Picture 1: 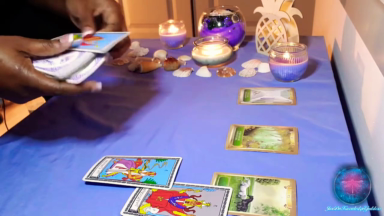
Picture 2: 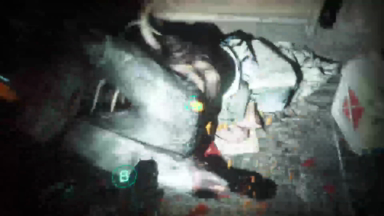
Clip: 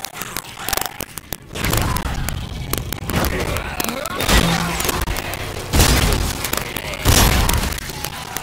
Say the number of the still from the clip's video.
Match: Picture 2